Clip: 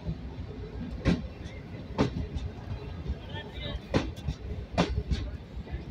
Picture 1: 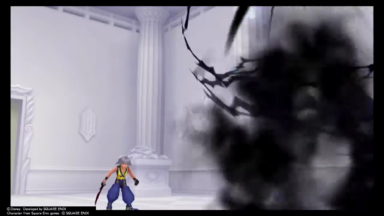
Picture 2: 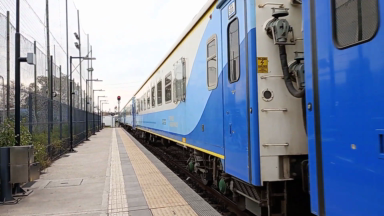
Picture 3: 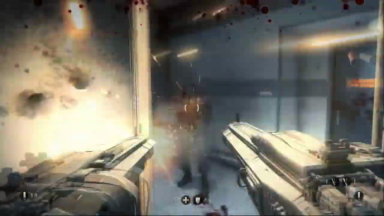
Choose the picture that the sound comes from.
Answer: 2